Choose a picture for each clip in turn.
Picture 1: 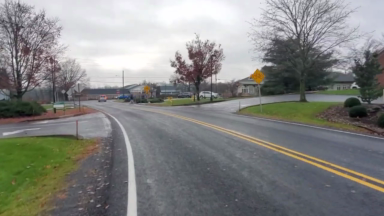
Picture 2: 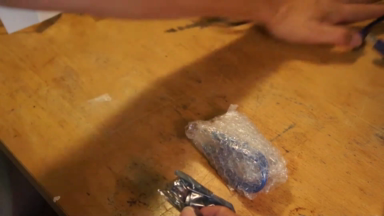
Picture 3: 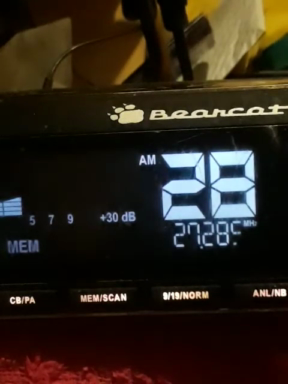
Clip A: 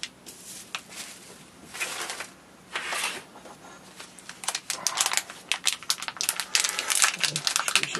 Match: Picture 2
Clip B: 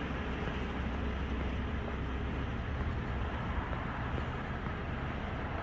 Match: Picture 1